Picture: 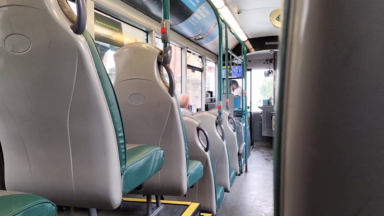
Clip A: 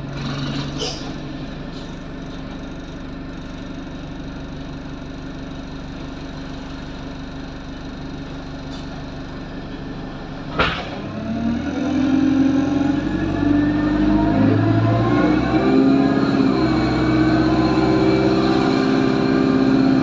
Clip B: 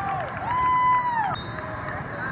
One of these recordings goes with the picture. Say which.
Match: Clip A